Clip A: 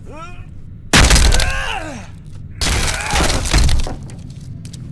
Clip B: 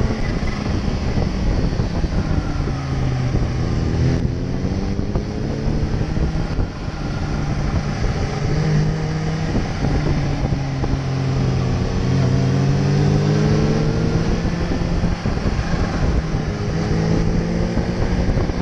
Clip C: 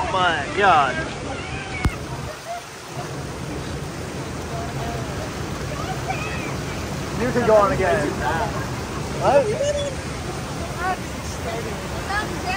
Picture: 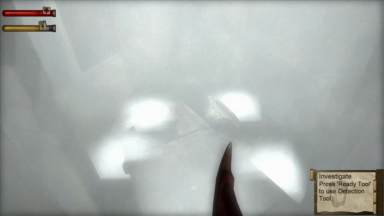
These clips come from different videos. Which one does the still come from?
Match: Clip A